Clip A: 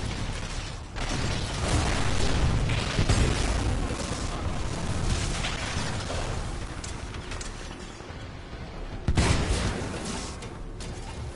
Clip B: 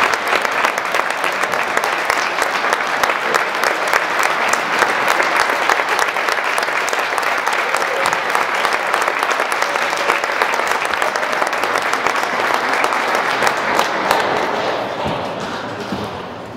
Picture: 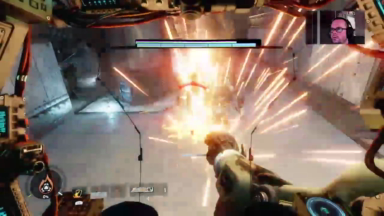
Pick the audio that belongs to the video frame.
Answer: A